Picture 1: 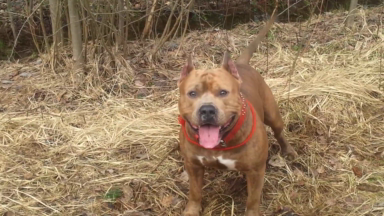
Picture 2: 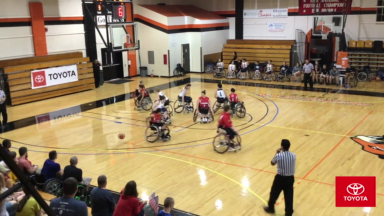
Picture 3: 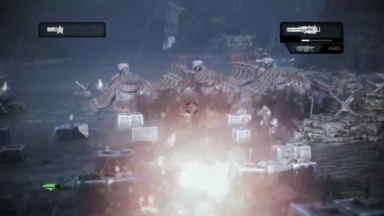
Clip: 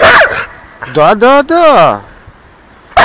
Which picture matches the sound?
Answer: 1